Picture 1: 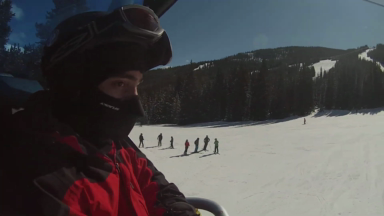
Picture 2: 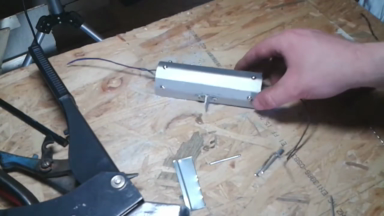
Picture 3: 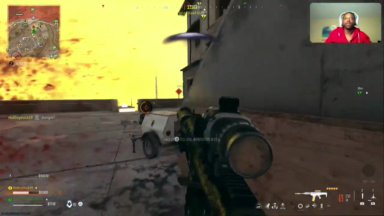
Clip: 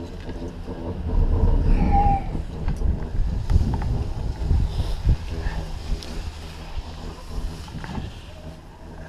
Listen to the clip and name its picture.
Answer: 1